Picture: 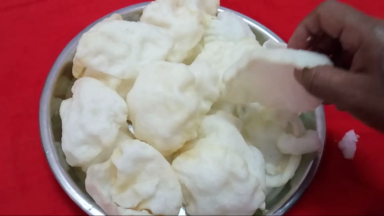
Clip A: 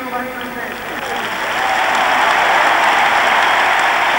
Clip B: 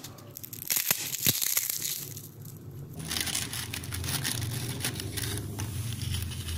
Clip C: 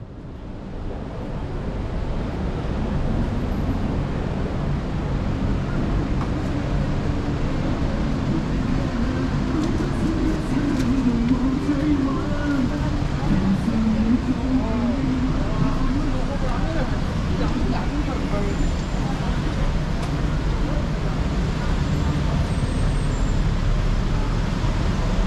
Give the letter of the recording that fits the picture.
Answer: B